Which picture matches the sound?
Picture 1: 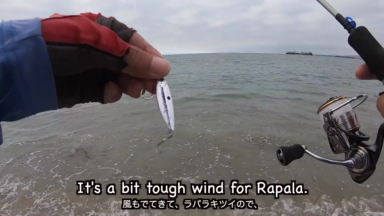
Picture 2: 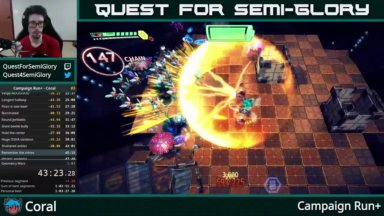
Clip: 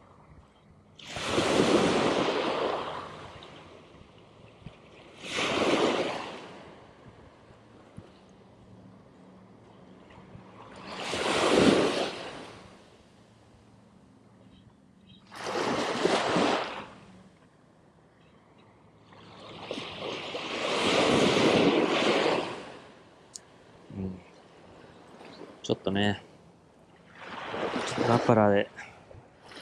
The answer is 1